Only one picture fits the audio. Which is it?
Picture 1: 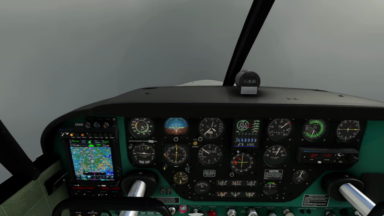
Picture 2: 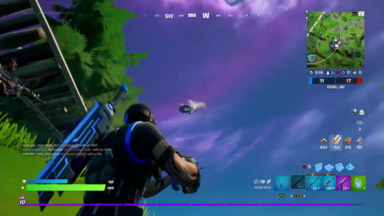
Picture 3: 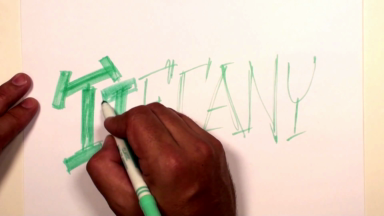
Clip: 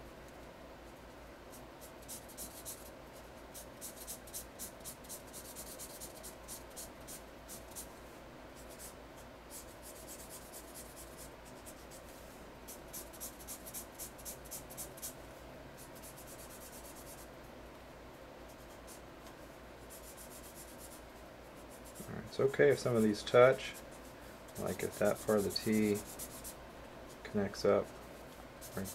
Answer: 3